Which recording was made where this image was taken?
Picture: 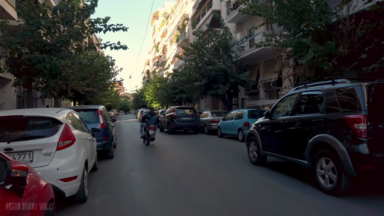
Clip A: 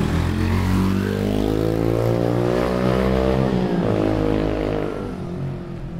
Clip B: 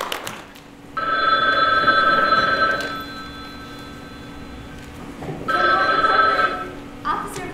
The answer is A